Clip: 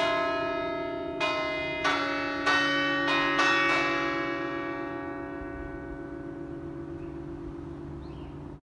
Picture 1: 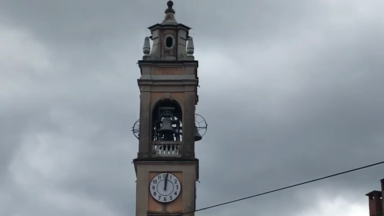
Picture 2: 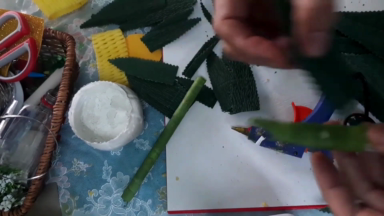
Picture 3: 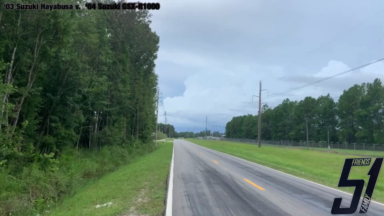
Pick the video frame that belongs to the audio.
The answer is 1